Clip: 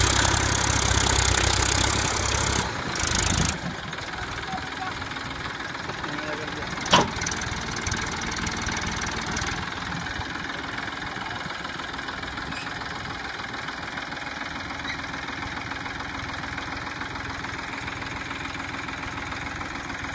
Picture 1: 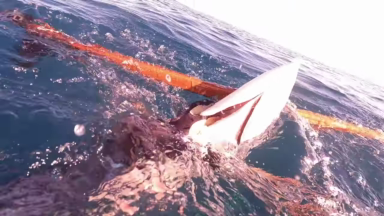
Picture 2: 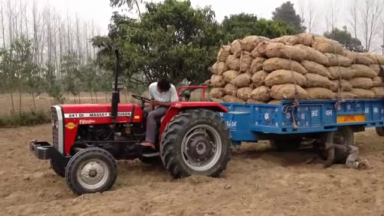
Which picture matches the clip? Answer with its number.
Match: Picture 2